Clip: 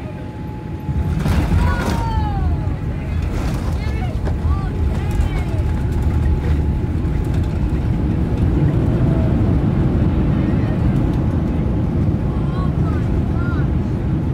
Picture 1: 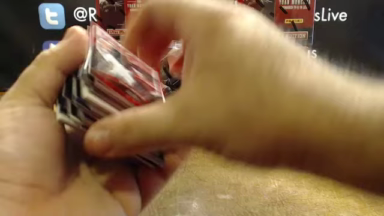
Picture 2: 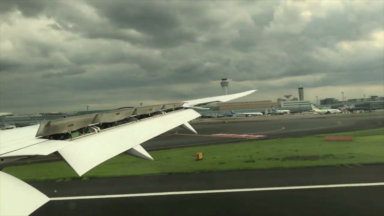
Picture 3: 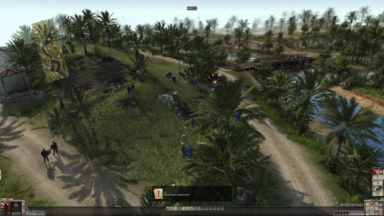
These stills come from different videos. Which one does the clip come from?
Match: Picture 2